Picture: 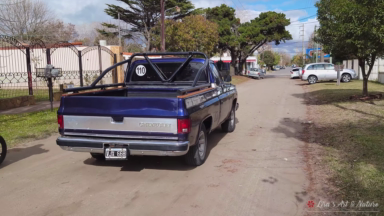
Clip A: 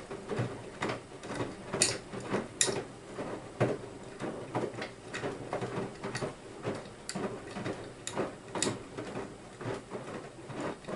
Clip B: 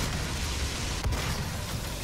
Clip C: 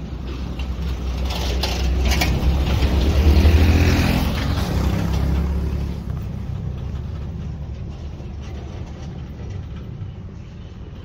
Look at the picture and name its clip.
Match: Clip C